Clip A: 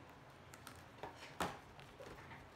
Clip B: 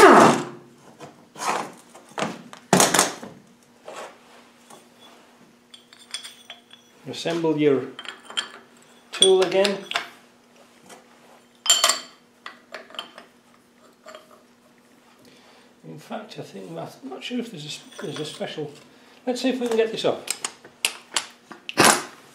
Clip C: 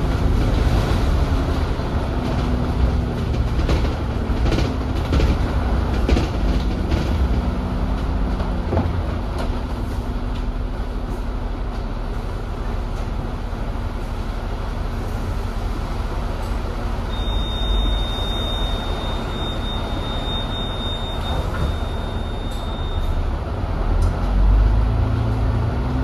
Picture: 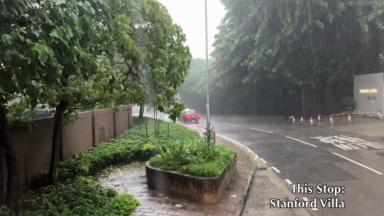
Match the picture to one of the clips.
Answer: C